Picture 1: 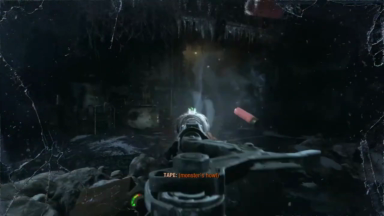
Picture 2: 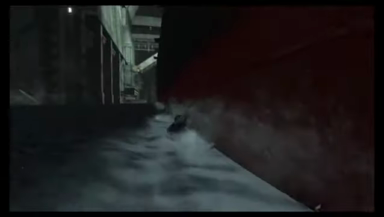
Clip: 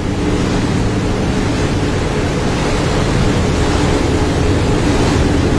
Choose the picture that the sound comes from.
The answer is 2